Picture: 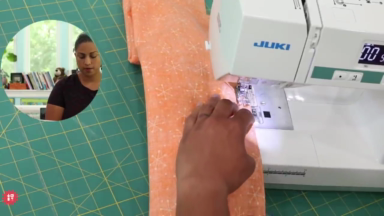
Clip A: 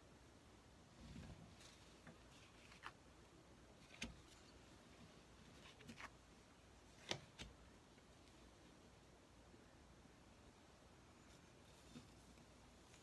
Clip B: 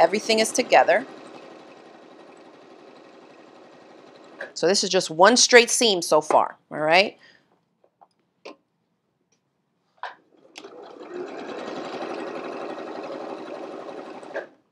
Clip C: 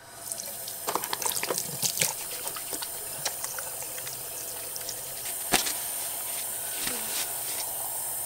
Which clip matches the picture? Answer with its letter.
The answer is B